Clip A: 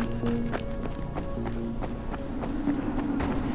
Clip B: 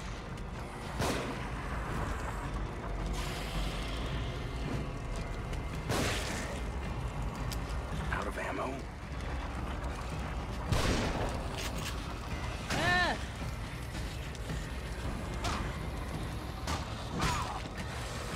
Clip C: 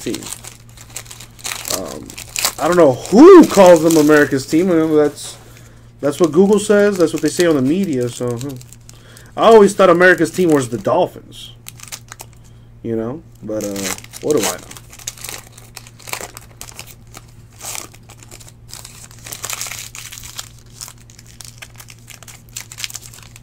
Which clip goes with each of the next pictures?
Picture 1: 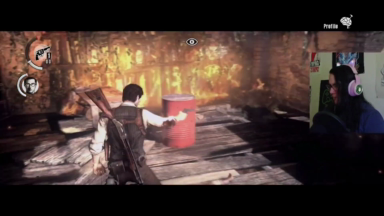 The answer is B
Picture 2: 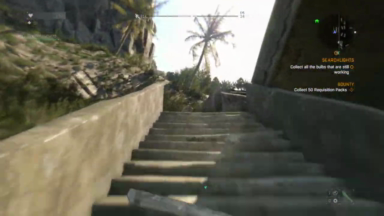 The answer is A